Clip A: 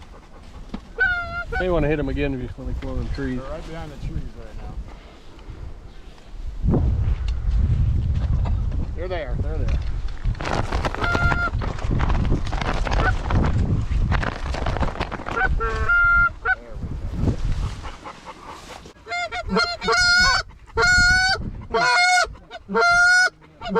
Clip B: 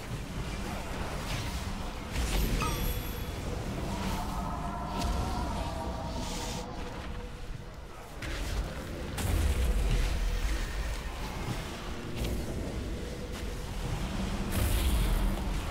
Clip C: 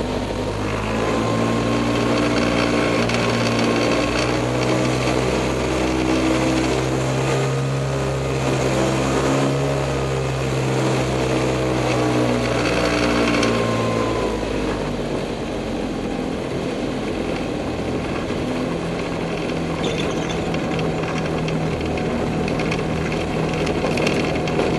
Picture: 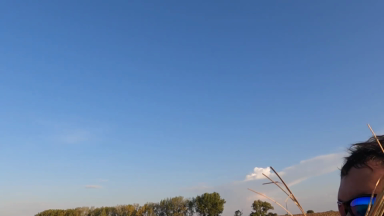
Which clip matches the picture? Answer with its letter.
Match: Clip A